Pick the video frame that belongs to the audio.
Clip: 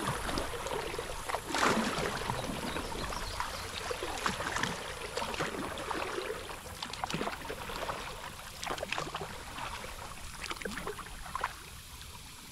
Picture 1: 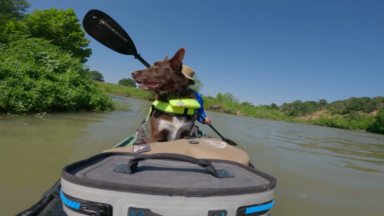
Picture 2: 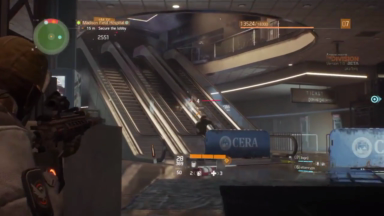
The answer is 1